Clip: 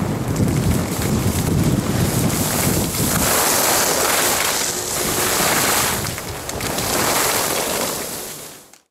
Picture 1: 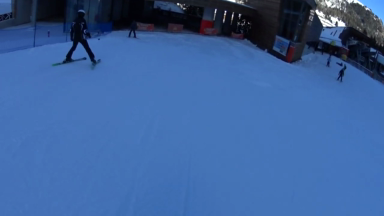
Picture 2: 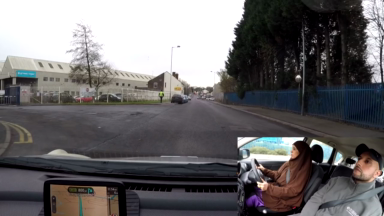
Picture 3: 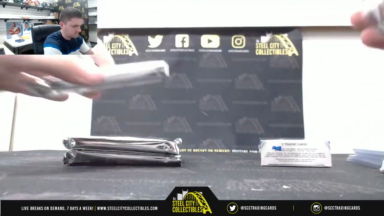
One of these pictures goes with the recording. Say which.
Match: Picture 1